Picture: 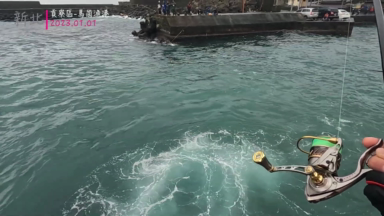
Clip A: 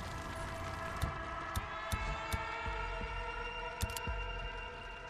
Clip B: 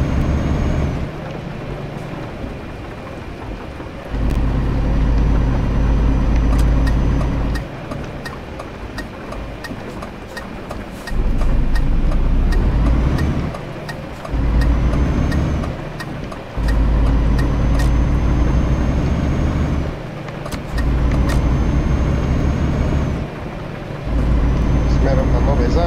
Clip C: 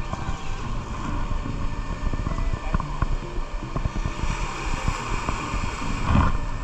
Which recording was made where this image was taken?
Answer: C